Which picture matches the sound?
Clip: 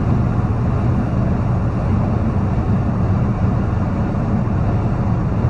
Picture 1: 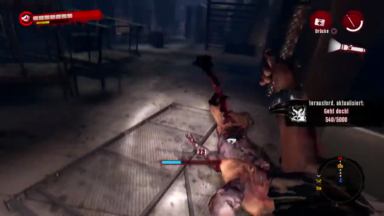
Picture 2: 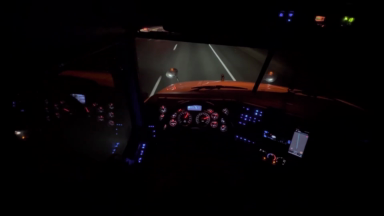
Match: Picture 2